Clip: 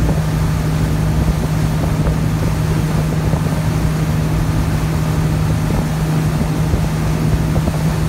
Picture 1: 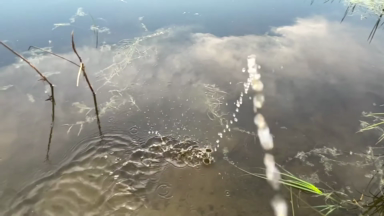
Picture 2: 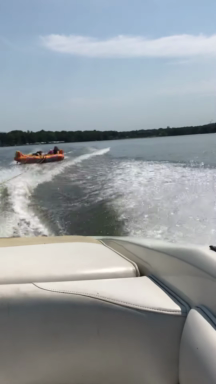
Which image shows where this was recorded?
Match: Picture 2